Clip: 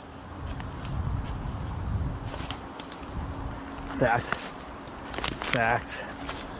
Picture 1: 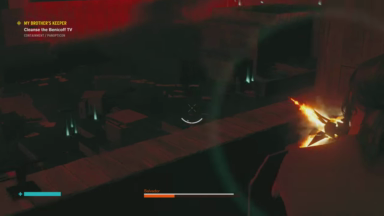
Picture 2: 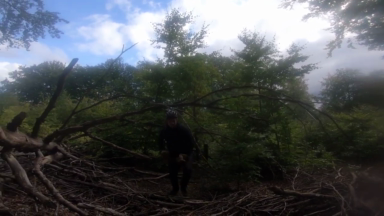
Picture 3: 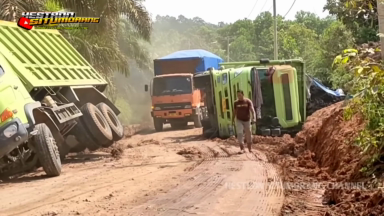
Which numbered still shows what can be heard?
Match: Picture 2